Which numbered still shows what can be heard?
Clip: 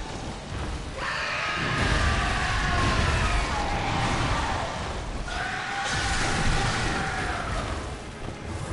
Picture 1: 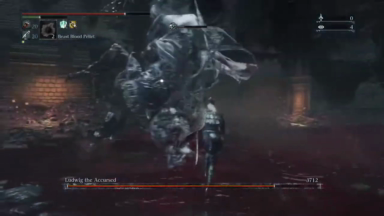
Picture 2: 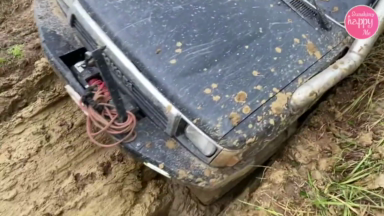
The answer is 1